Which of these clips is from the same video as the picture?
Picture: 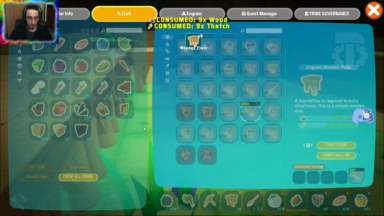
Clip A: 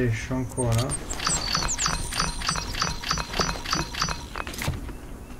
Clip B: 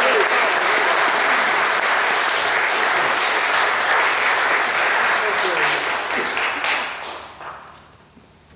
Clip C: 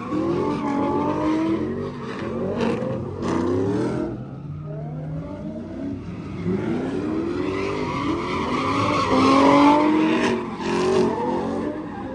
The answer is A